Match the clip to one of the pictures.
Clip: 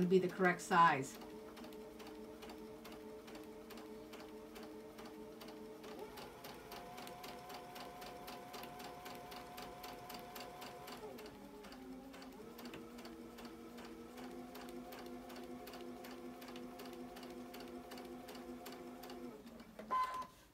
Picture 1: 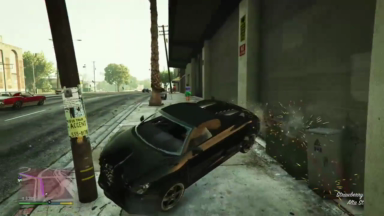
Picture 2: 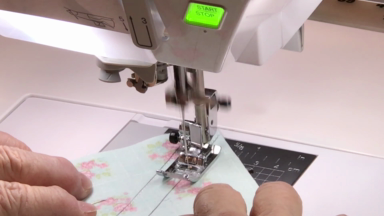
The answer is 2